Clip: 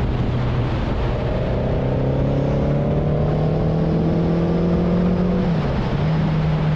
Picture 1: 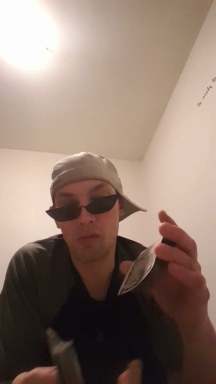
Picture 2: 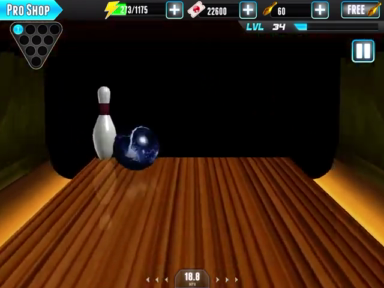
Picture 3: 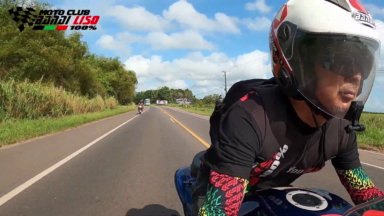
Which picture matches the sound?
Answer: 3